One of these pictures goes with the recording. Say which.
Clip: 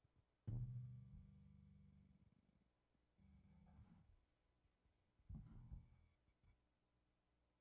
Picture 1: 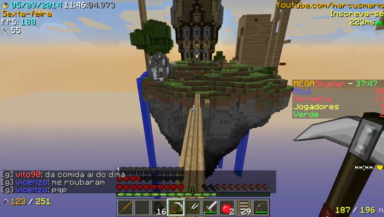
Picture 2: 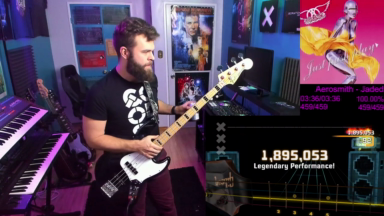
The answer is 2